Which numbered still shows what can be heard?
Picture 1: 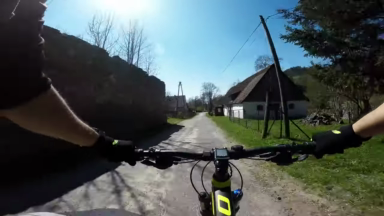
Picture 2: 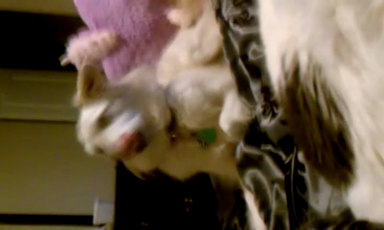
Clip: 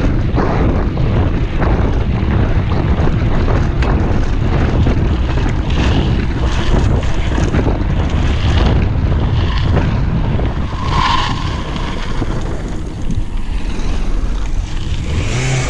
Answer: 1